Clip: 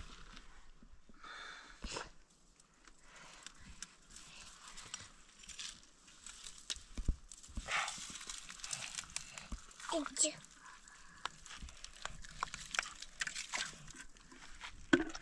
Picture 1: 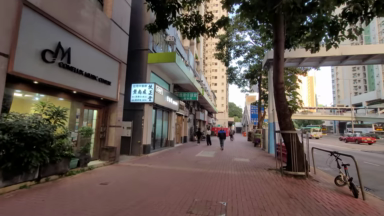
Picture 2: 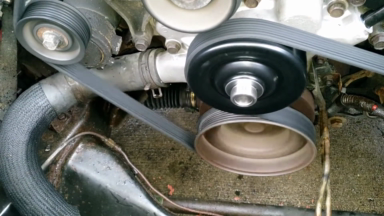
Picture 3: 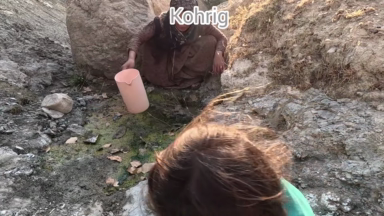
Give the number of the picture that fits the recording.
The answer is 3